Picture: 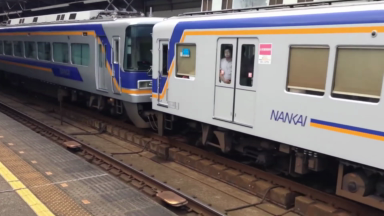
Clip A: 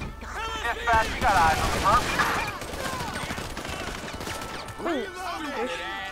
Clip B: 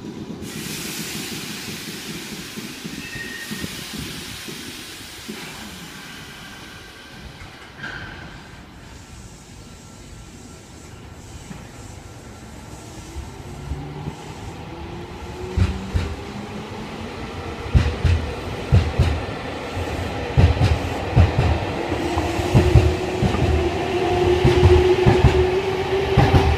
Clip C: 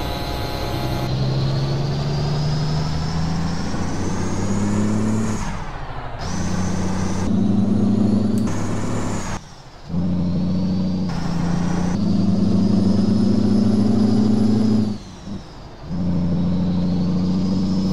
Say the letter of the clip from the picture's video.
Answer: B